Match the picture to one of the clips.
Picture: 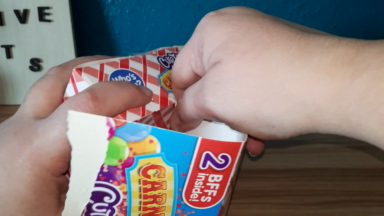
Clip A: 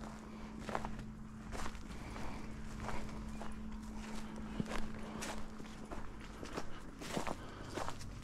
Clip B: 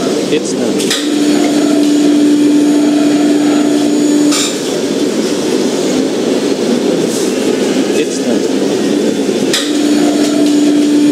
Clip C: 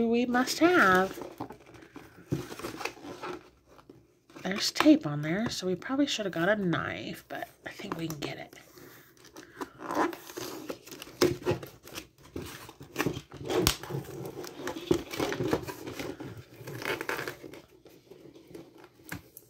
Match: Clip C